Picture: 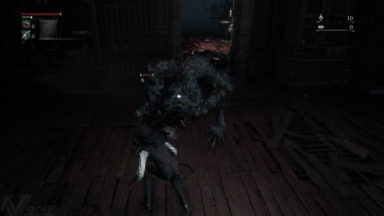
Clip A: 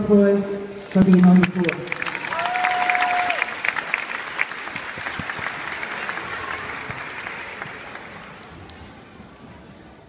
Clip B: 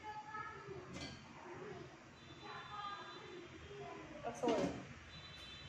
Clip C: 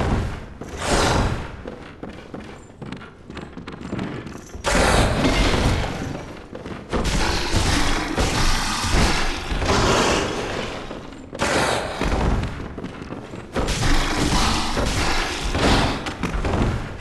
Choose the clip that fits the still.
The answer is C